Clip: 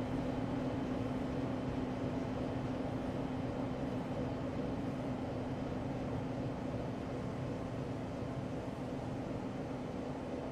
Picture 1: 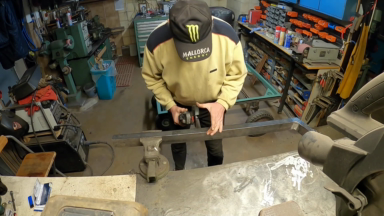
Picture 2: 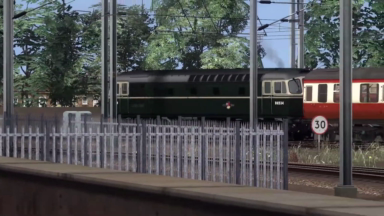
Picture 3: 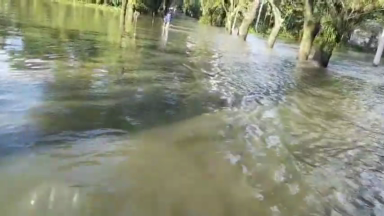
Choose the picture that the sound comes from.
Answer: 2